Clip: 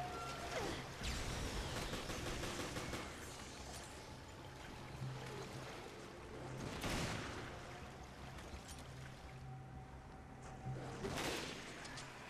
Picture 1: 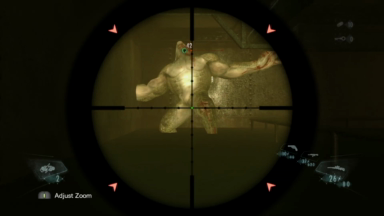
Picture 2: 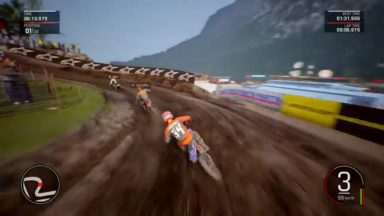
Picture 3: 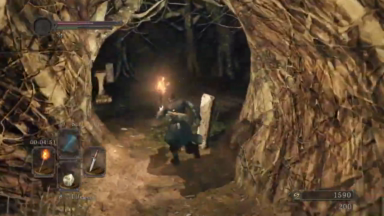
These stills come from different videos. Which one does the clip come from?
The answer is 1